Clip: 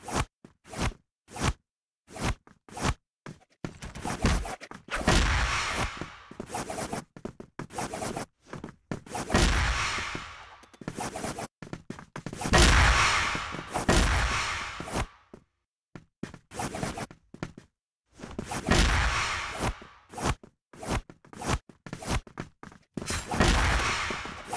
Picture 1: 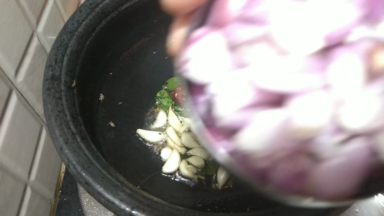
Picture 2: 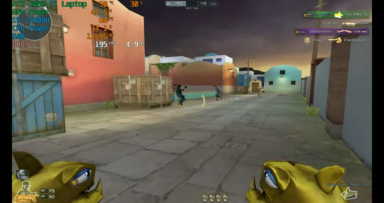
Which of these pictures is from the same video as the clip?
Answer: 2